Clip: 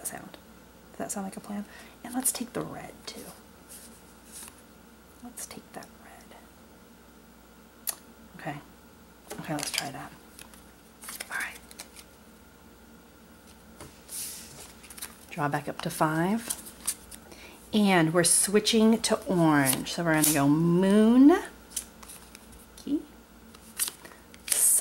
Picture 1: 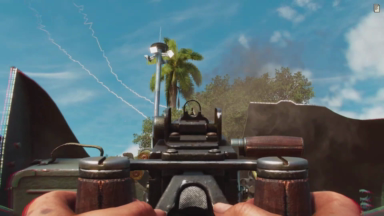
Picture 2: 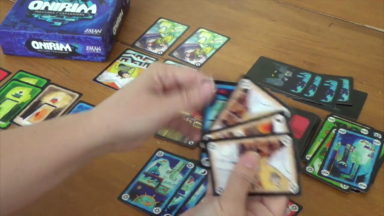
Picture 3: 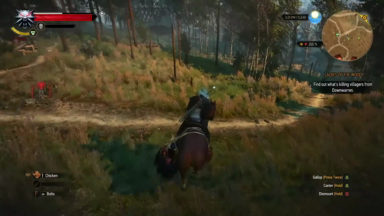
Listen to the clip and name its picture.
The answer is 2